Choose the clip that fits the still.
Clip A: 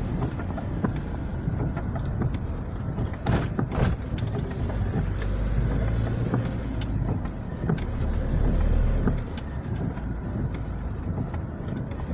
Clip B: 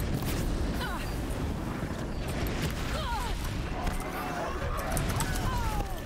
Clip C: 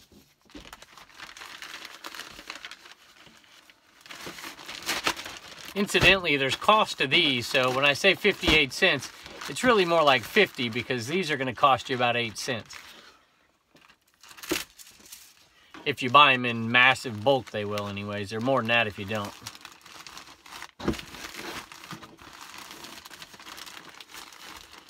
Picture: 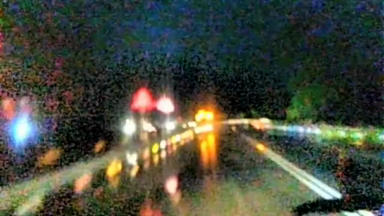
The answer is A